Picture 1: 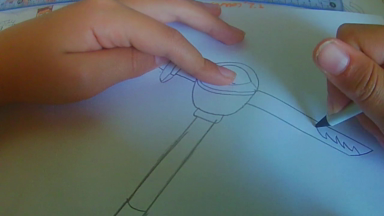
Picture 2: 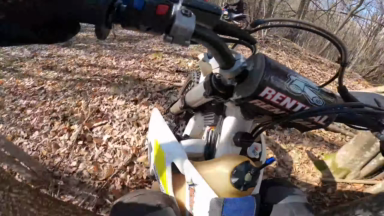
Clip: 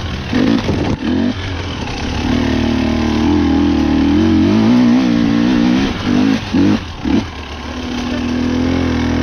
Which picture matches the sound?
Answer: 2